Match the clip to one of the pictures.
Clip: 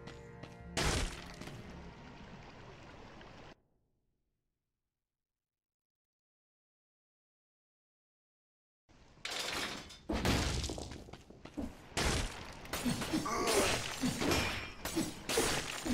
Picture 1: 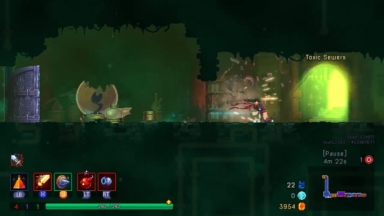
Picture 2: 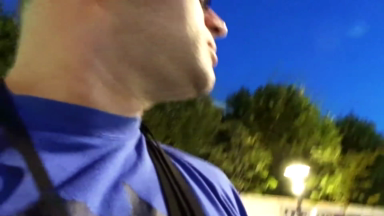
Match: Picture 1